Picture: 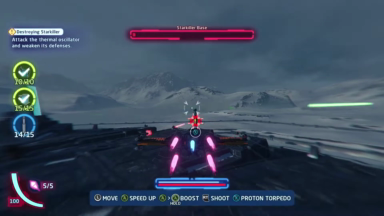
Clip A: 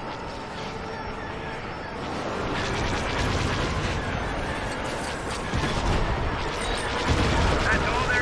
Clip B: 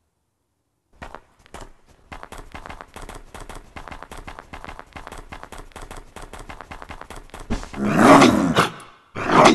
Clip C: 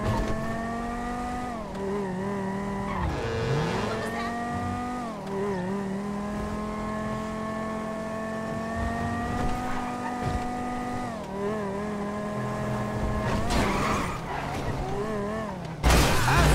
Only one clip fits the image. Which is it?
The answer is A